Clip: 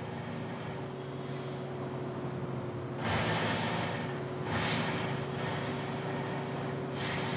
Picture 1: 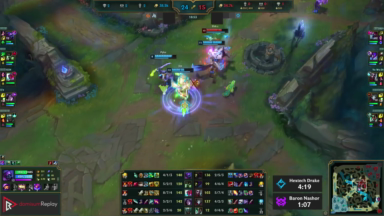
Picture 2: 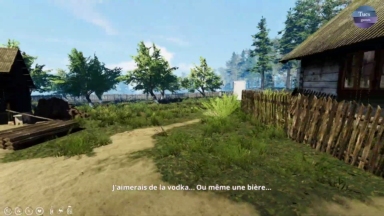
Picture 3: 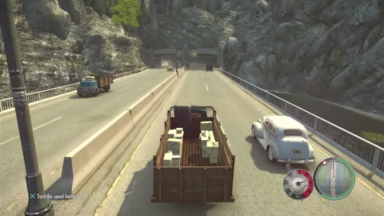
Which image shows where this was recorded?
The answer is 3